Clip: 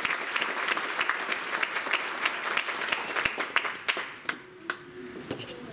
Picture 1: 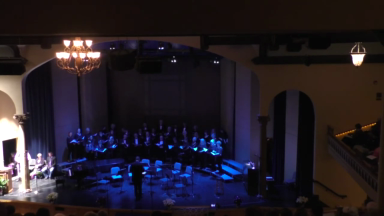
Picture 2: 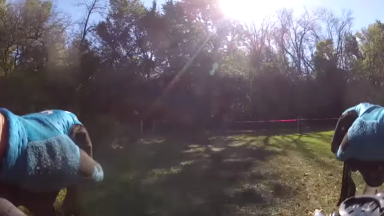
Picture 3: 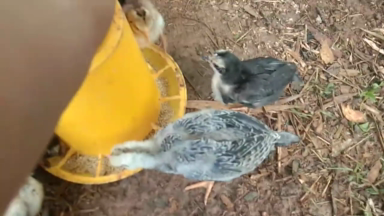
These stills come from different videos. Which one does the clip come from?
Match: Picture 1